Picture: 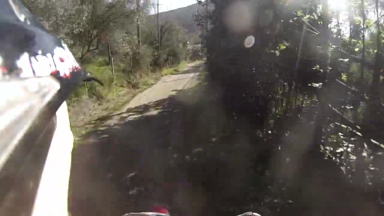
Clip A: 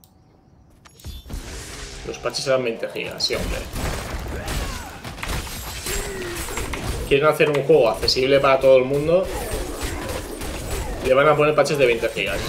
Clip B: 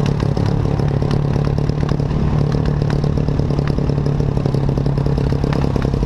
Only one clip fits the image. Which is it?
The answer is B